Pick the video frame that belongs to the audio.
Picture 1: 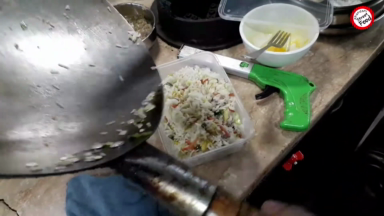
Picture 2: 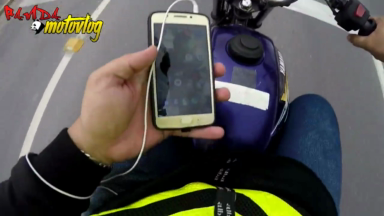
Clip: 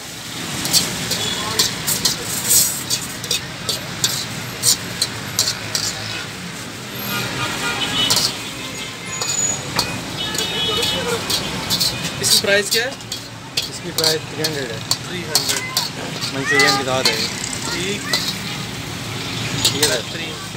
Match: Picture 1